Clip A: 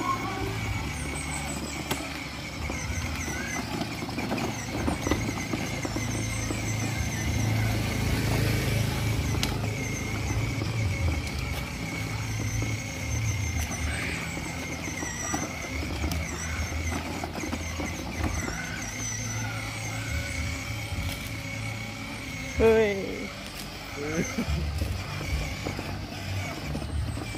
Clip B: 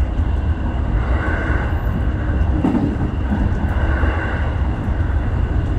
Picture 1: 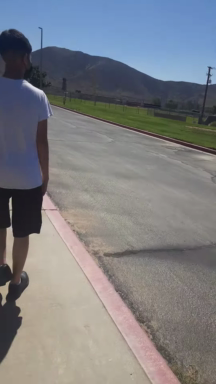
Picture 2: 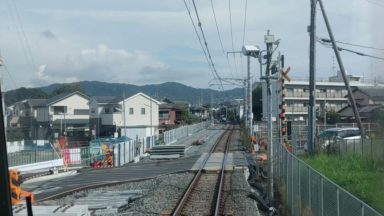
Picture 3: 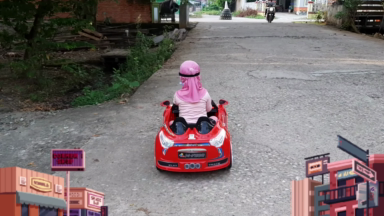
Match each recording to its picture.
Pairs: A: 3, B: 2